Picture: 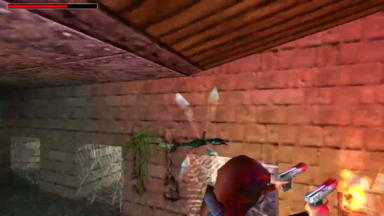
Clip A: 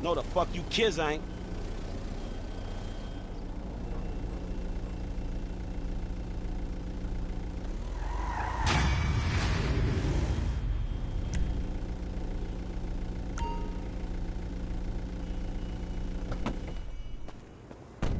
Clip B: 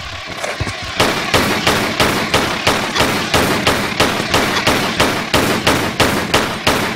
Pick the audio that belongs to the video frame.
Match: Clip B